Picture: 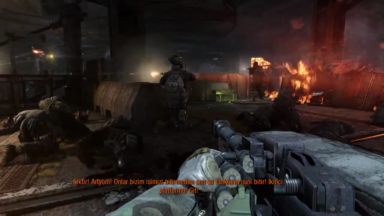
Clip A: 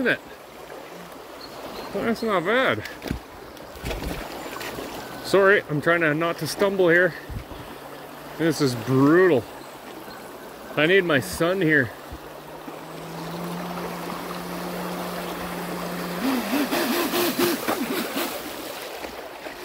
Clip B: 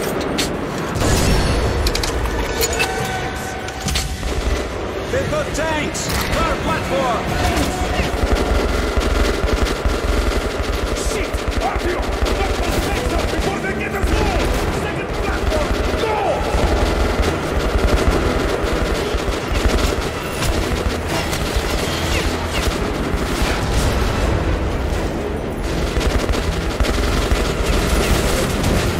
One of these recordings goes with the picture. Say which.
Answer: B